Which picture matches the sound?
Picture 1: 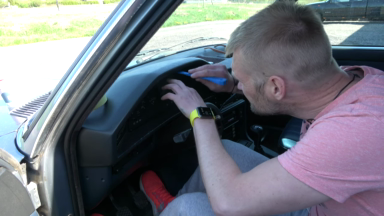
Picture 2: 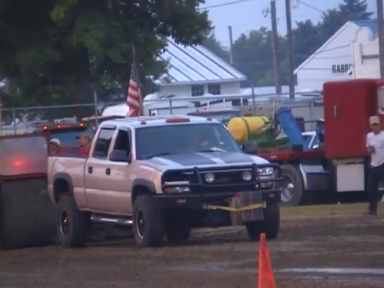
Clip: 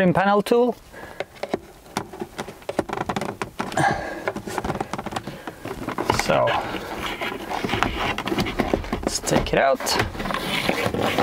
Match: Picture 1